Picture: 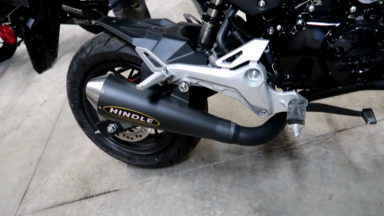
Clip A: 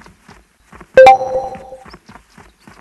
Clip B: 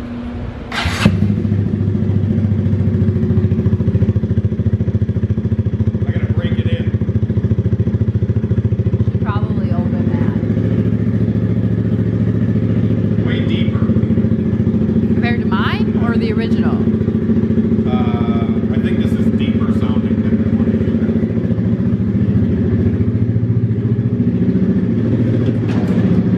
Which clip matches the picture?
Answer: B